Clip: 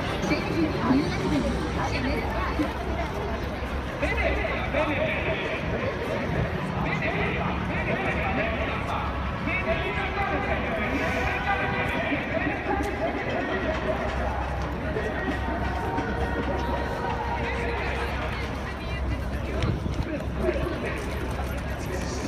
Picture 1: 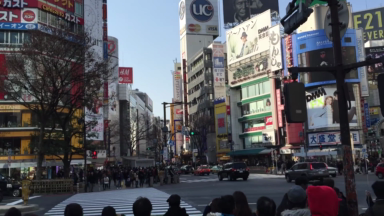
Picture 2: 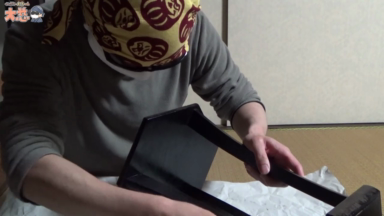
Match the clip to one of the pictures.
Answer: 1